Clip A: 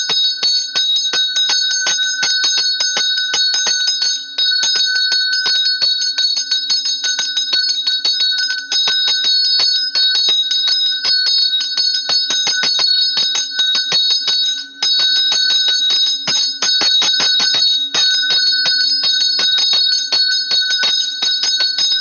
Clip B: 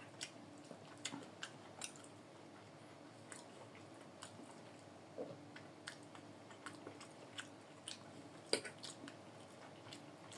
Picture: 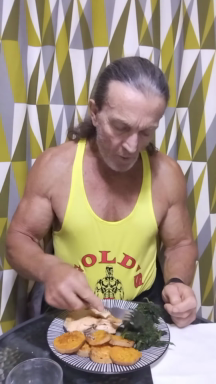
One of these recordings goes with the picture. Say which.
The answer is B